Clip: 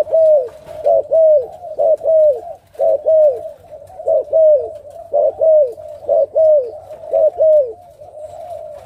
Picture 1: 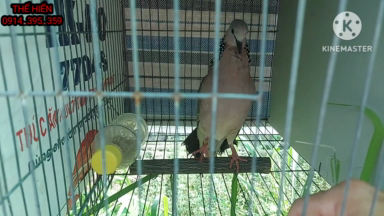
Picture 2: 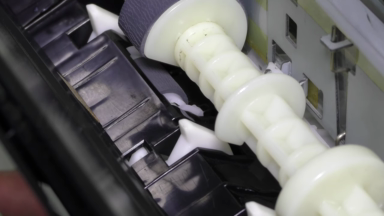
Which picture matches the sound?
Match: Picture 1